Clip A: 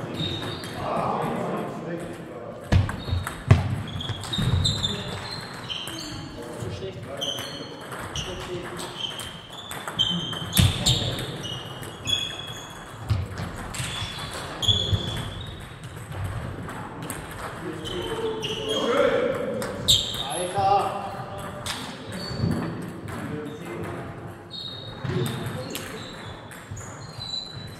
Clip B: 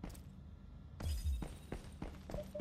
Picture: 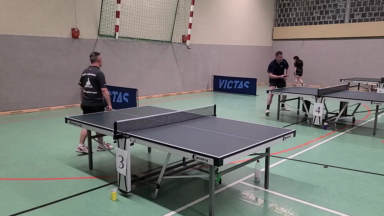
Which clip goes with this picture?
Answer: A